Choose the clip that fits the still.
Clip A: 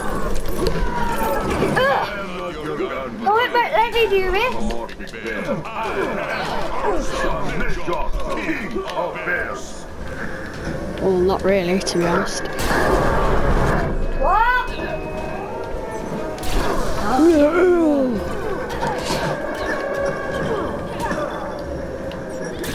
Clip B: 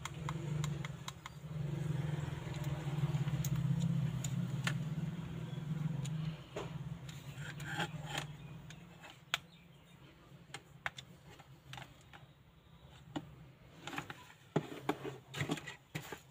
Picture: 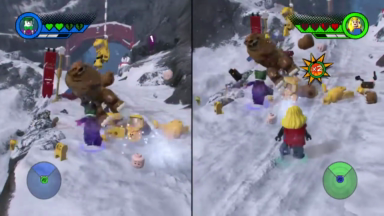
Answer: A